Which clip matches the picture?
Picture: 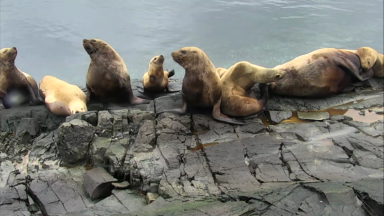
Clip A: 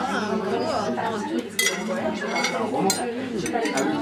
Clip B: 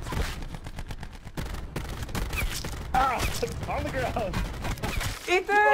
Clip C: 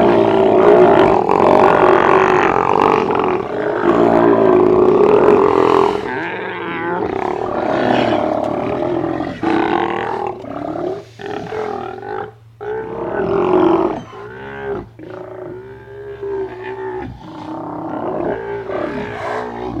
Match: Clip C